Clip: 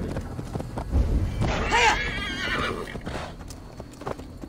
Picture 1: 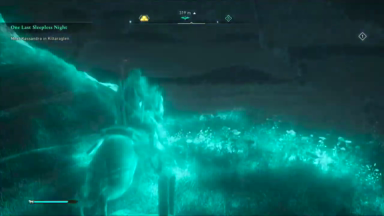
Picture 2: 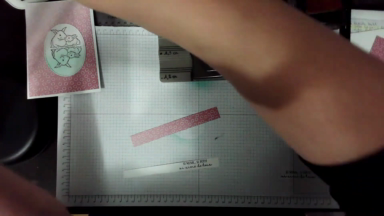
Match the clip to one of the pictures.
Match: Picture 1